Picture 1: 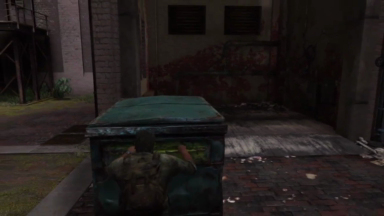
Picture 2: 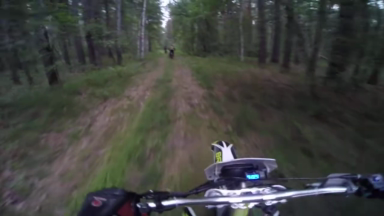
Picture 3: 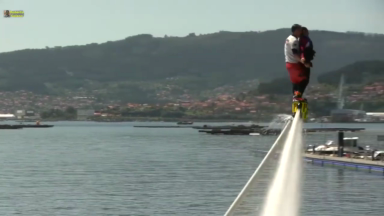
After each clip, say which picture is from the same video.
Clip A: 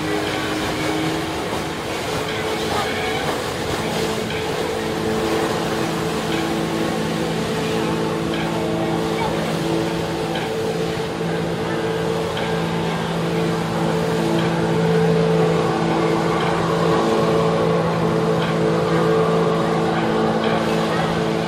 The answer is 3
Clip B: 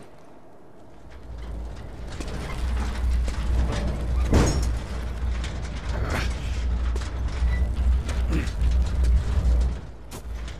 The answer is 1